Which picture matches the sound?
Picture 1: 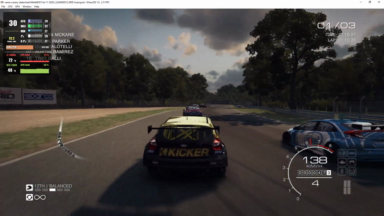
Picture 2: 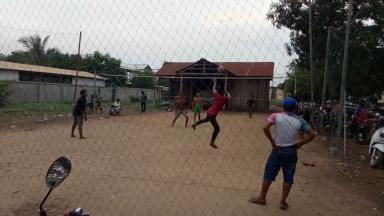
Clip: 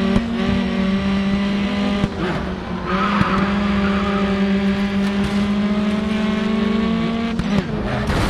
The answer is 1